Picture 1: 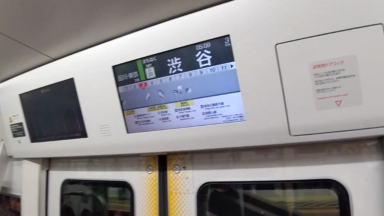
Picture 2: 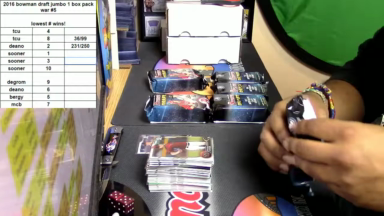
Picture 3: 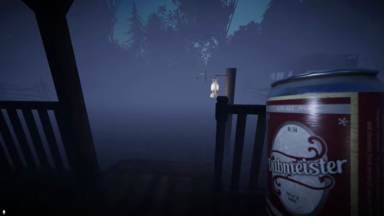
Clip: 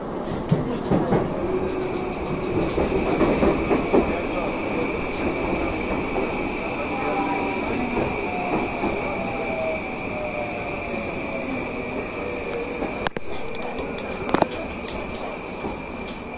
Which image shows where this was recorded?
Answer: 1